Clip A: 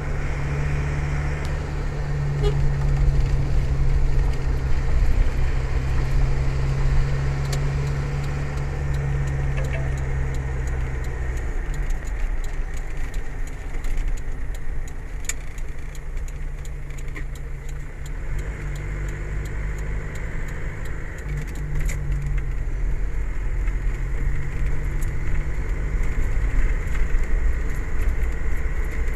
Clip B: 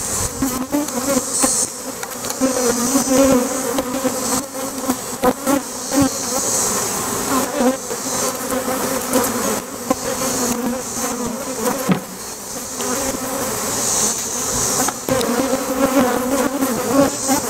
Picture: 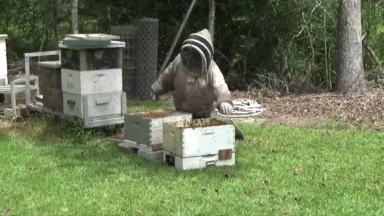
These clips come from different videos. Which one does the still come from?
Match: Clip B